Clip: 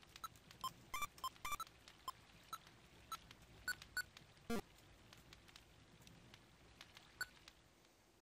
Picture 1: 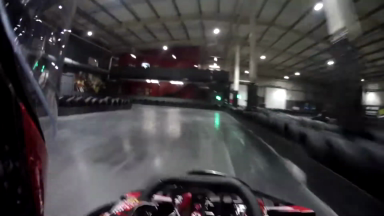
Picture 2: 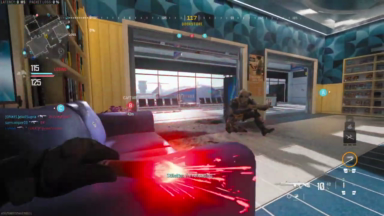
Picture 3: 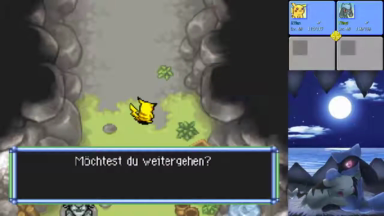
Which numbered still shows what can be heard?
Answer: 3